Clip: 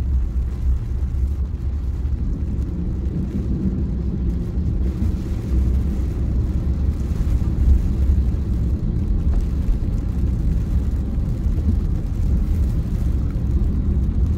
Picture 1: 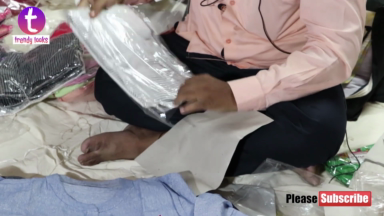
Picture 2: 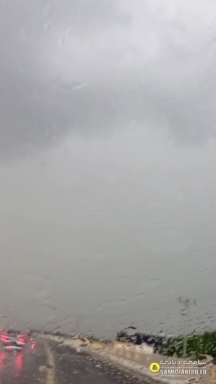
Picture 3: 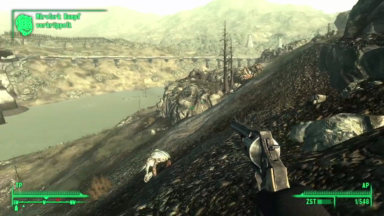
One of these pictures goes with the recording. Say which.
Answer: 2